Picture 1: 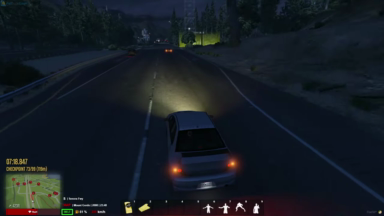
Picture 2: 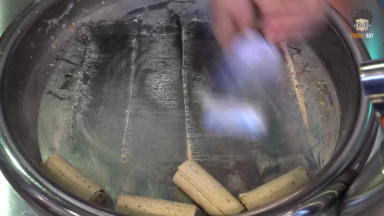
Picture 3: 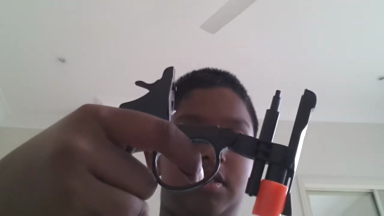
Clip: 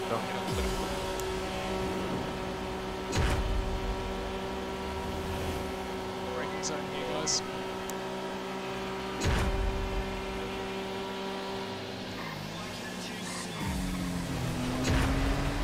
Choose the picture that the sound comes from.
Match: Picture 1